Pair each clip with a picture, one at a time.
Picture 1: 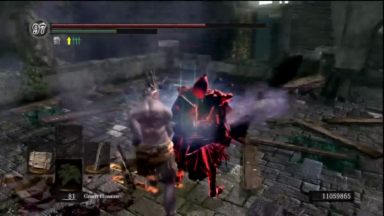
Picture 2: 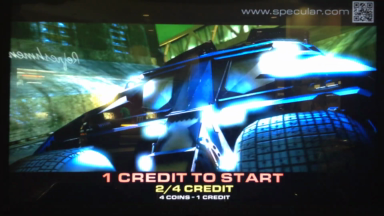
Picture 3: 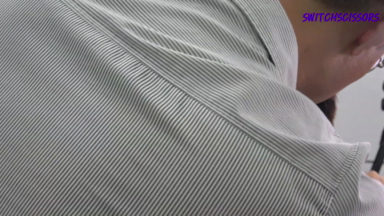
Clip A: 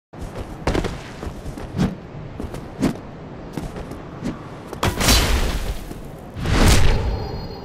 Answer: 1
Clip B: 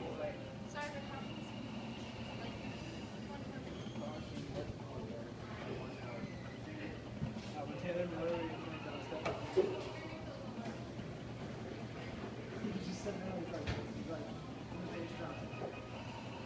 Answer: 2